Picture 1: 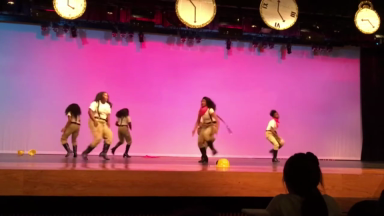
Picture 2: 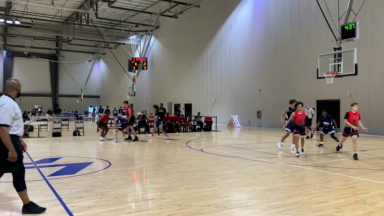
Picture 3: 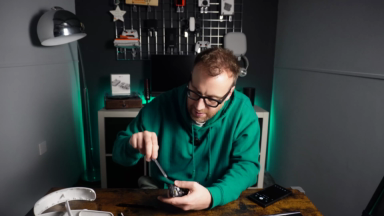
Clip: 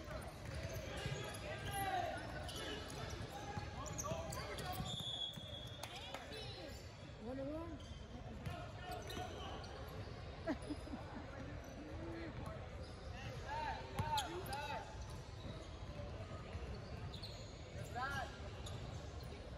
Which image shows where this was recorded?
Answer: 2